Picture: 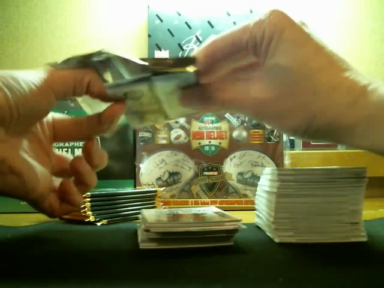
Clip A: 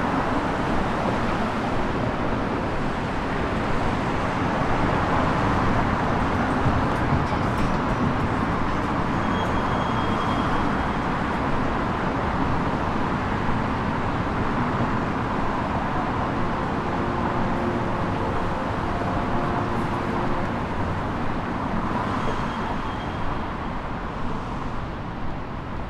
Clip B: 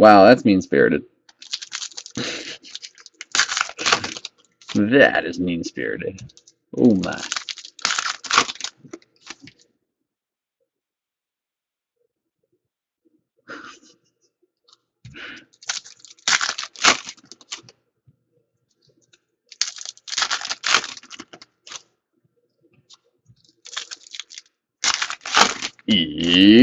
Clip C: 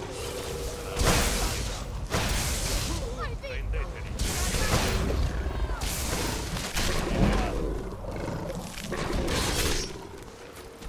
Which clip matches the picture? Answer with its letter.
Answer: B